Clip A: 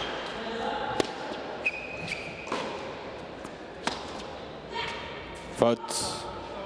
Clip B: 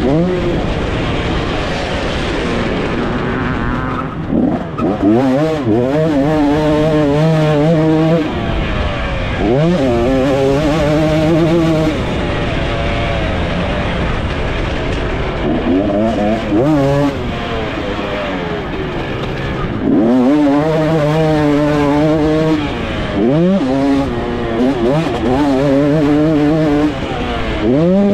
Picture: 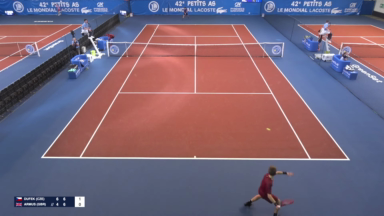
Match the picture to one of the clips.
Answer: A